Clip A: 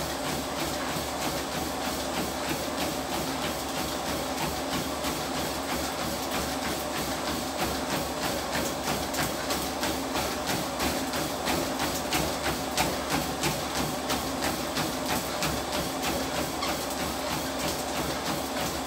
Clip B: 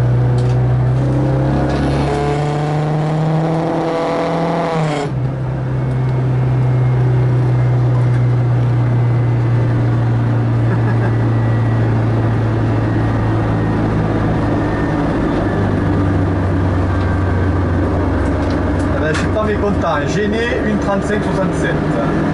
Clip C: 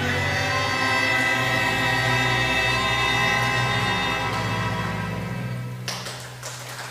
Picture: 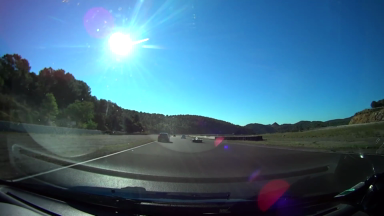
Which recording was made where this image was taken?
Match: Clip B